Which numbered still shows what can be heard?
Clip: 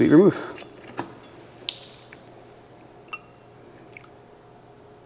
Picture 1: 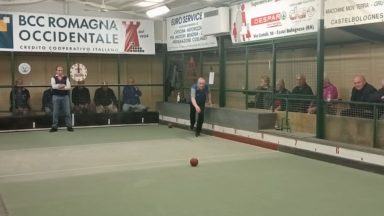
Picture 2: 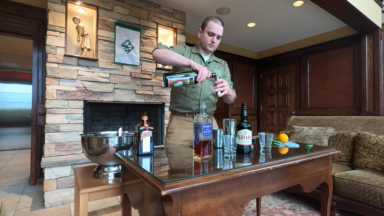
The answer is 2